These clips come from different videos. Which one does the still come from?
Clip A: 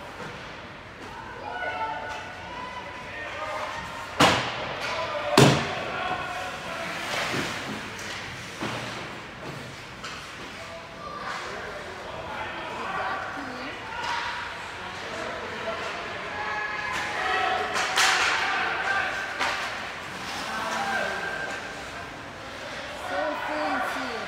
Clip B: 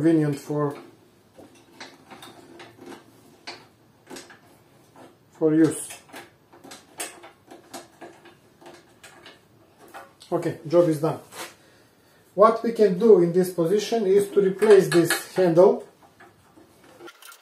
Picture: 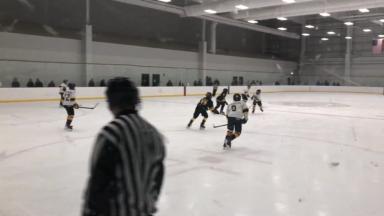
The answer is A